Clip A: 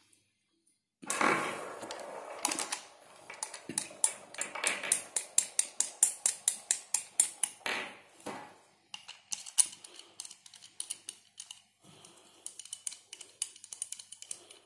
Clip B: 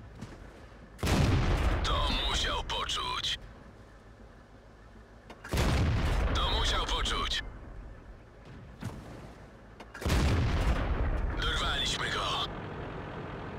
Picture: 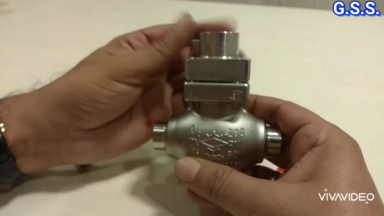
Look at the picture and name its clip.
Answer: A